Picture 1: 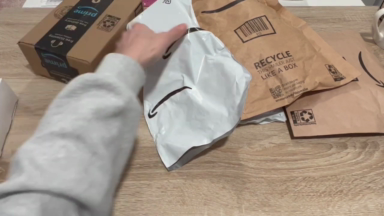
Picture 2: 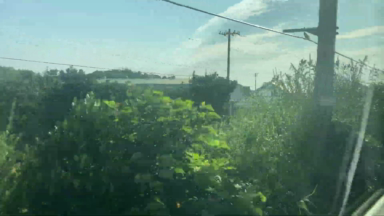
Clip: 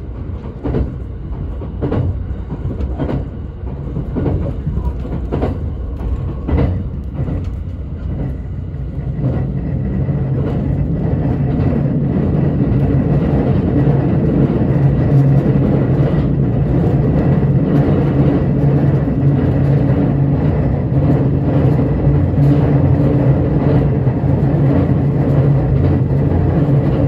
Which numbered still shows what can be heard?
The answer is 2